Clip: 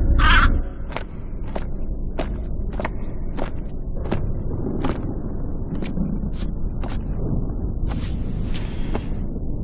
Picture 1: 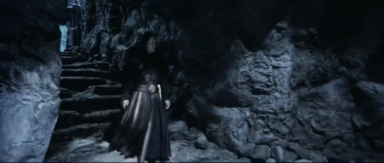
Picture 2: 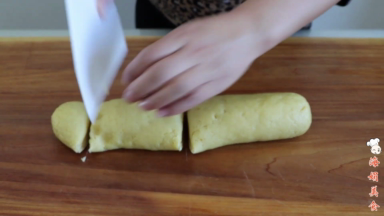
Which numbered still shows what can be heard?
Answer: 1